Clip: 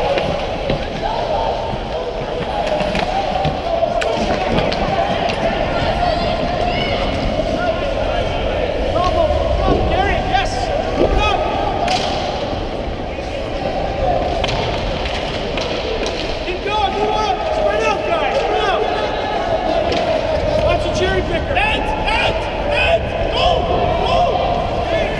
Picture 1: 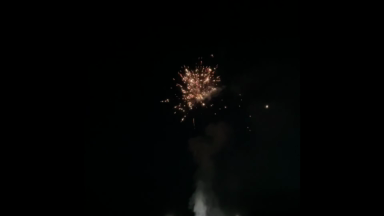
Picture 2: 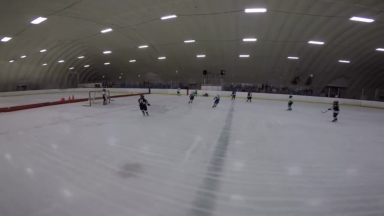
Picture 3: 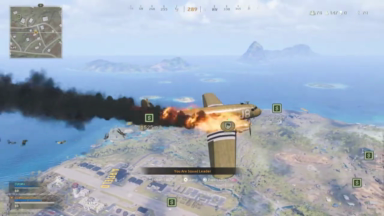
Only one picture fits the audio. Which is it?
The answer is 2